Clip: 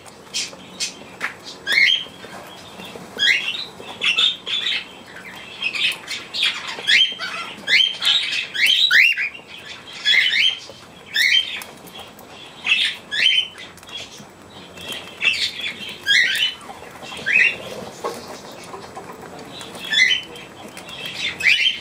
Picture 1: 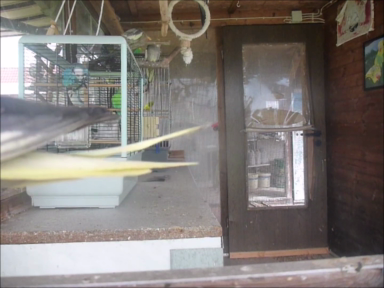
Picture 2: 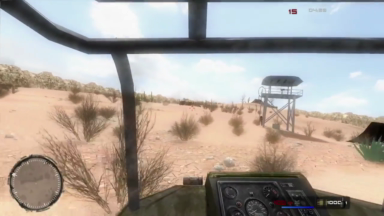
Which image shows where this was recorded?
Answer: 1